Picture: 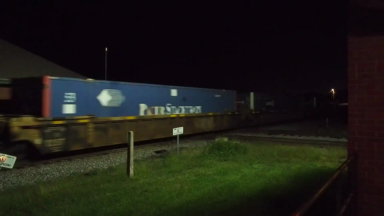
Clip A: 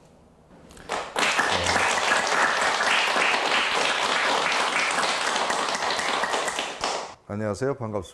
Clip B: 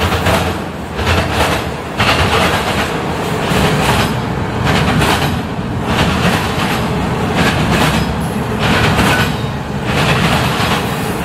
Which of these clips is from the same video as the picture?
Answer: B